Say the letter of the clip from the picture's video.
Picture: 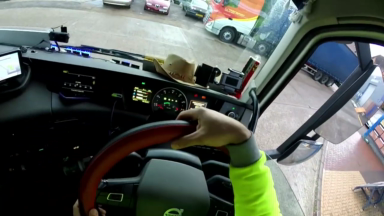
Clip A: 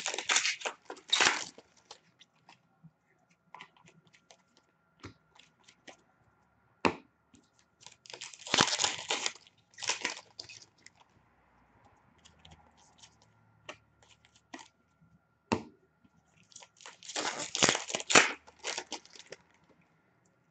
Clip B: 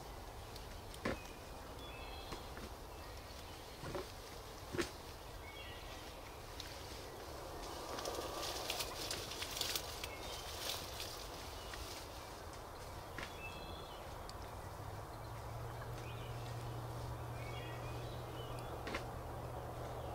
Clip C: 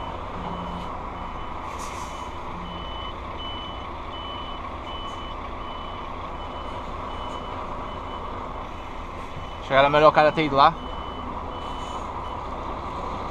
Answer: C